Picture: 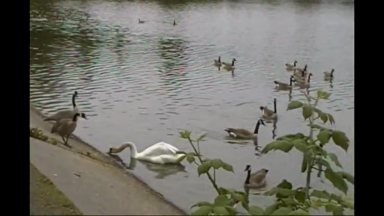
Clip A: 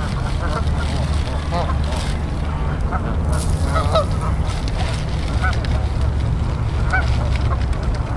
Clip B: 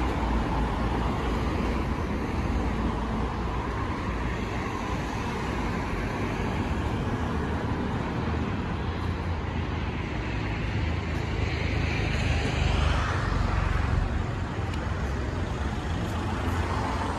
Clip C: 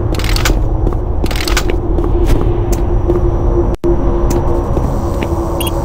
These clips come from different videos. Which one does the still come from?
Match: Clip A